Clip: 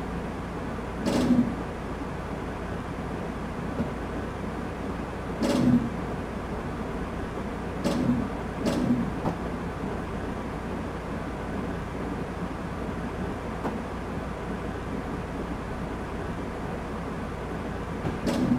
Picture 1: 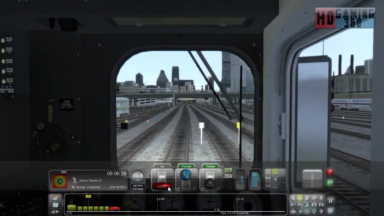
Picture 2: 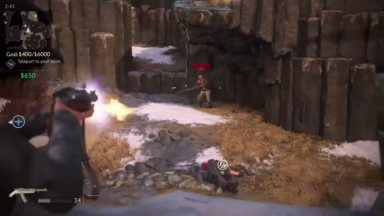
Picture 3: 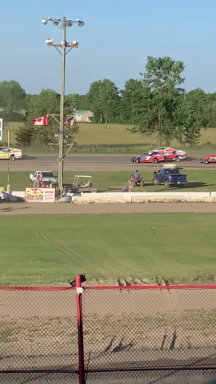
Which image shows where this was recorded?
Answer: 1